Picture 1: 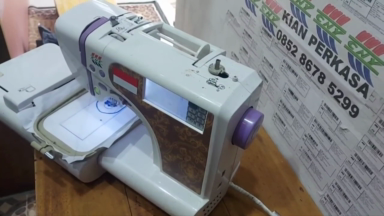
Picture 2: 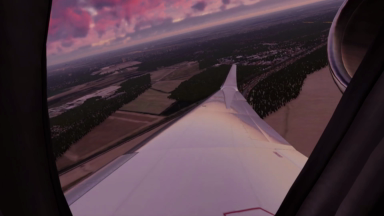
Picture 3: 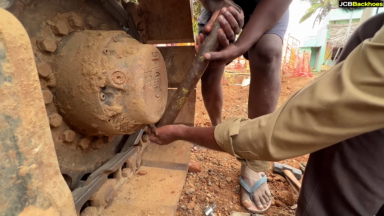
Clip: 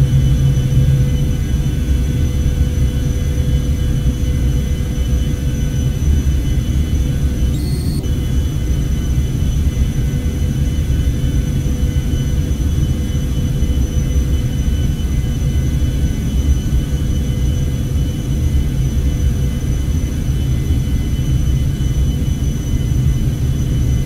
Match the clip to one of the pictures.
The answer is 2